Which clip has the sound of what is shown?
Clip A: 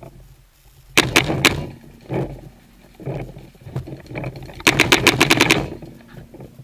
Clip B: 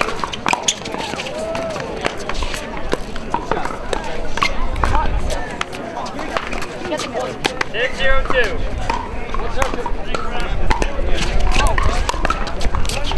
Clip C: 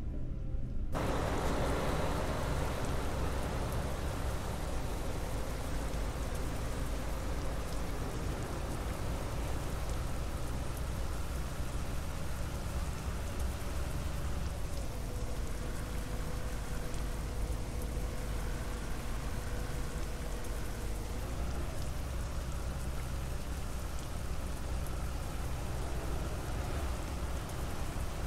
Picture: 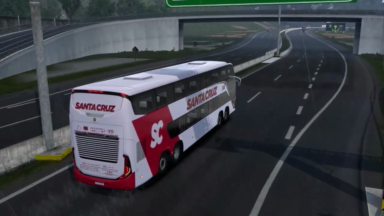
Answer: C